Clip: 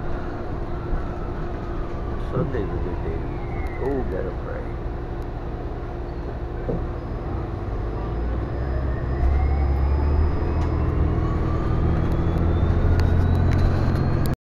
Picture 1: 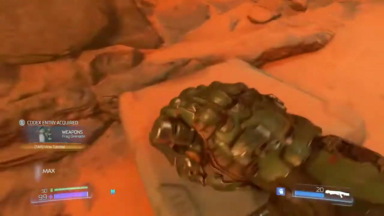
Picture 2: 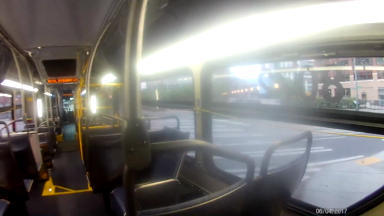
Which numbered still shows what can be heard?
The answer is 2